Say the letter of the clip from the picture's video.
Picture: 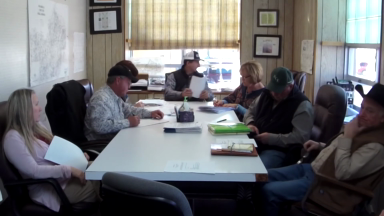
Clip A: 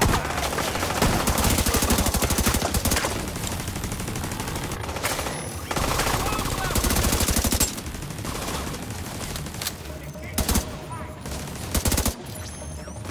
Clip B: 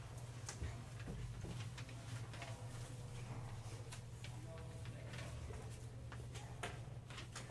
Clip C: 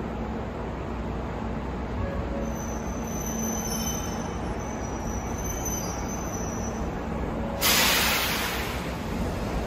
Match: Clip B